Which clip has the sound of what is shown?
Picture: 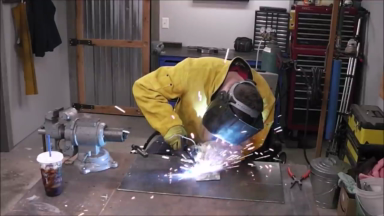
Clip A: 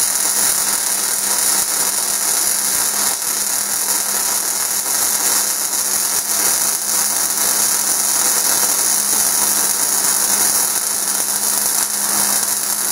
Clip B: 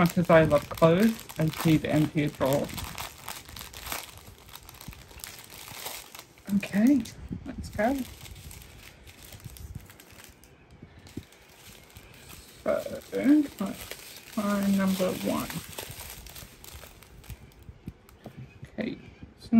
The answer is A